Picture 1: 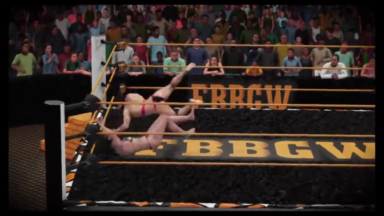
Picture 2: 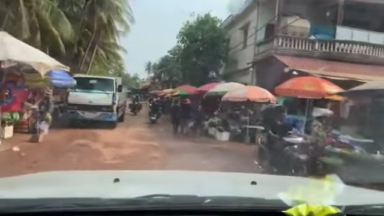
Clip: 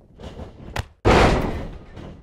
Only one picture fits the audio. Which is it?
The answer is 1